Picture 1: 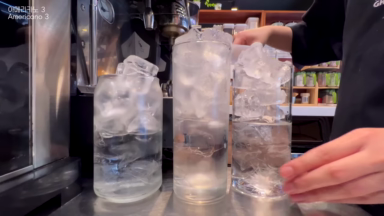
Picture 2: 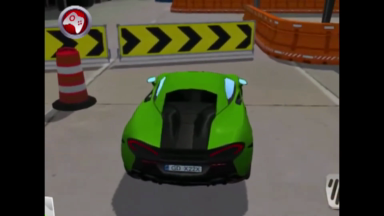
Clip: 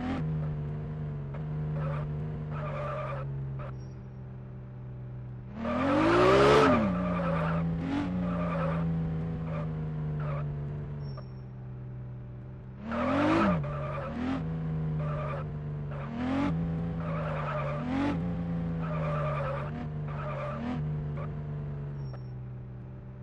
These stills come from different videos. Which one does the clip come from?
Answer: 2